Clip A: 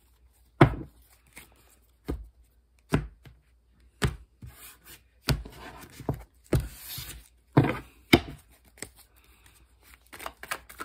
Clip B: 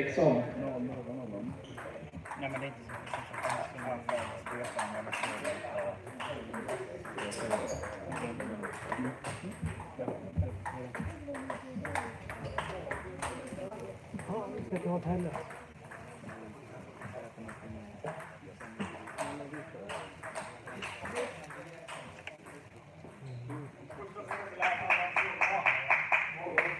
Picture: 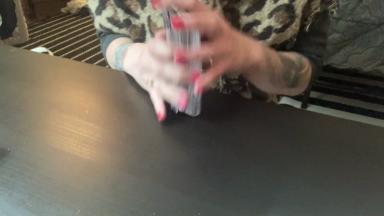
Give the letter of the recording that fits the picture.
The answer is A